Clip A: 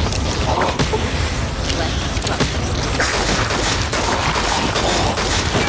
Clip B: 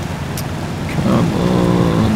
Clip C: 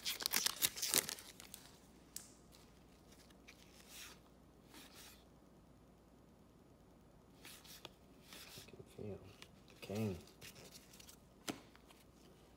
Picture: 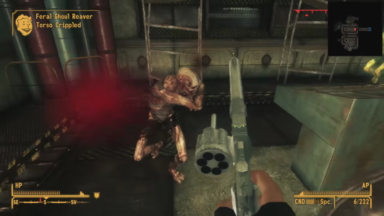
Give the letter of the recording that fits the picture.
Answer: A